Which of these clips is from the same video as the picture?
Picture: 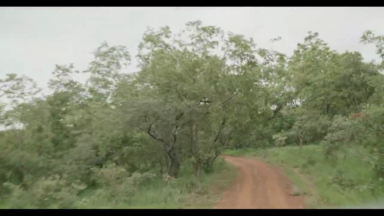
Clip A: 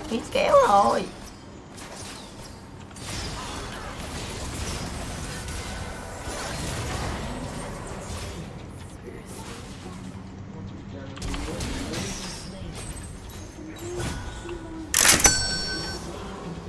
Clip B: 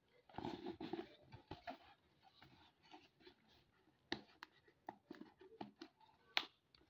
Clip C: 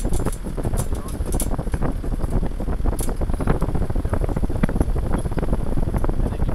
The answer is C